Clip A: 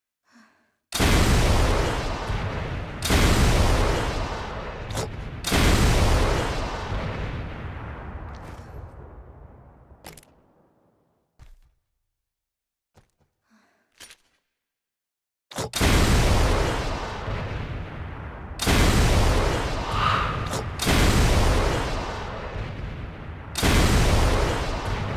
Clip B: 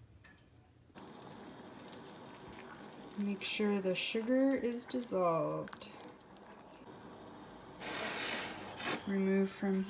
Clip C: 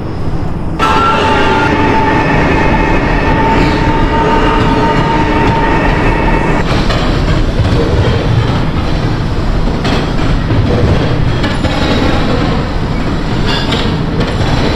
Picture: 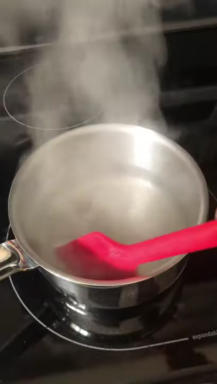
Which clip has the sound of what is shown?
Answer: B